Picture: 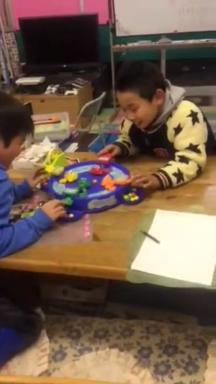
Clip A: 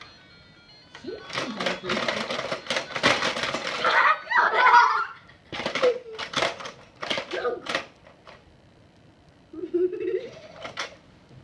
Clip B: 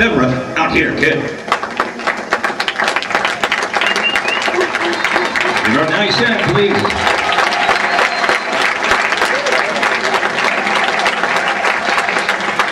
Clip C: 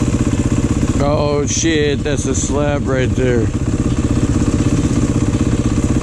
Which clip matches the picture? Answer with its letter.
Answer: A